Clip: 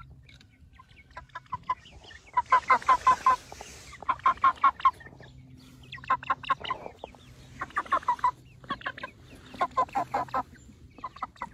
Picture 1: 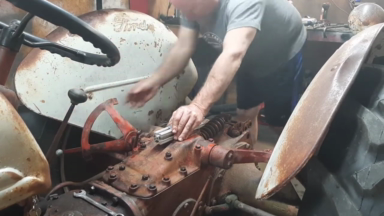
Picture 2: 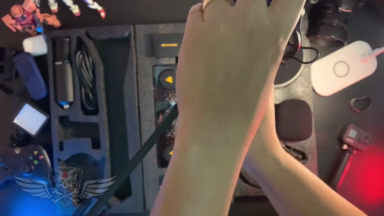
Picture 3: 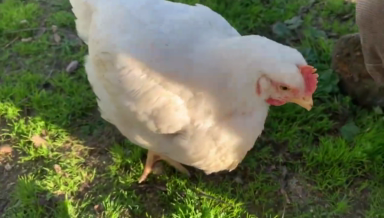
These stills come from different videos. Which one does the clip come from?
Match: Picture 3